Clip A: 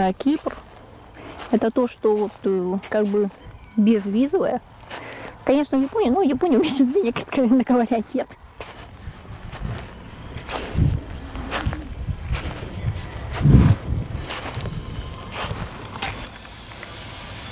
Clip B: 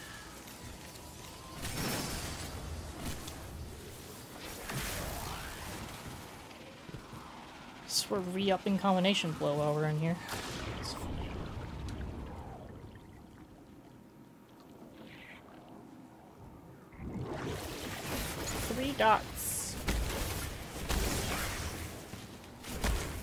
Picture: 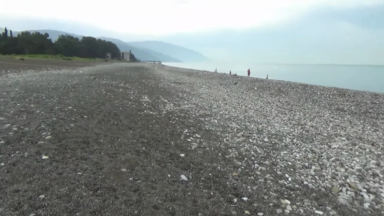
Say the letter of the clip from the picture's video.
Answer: A